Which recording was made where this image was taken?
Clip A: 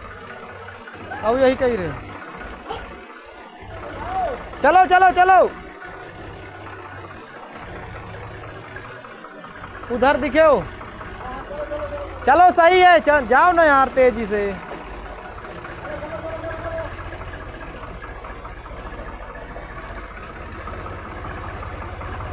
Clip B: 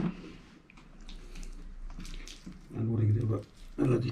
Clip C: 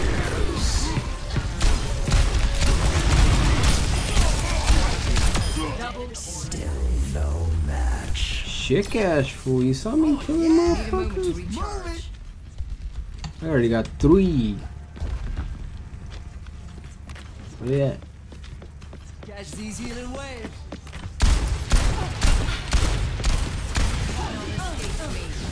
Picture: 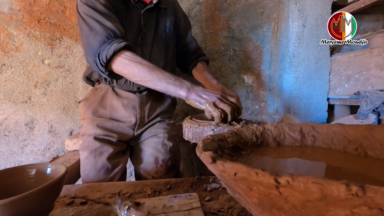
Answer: B